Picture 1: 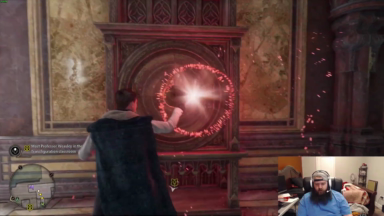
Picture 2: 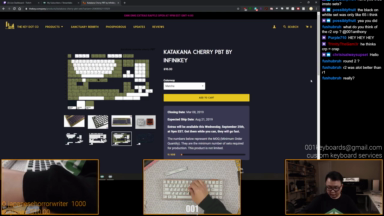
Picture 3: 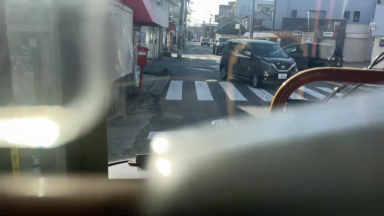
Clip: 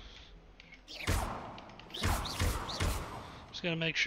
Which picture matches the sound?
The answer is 1